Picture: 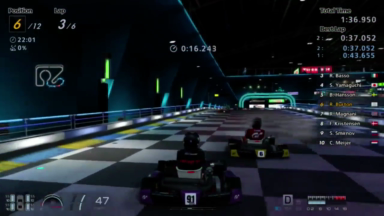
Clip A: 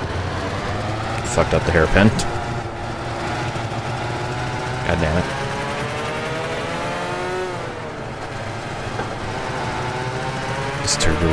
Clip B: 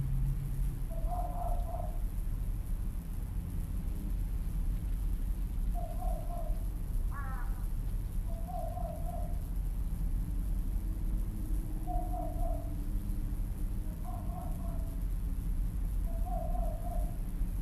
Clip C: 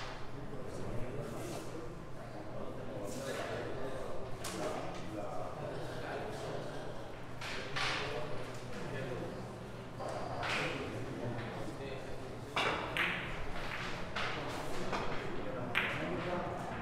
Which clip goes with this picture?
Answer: A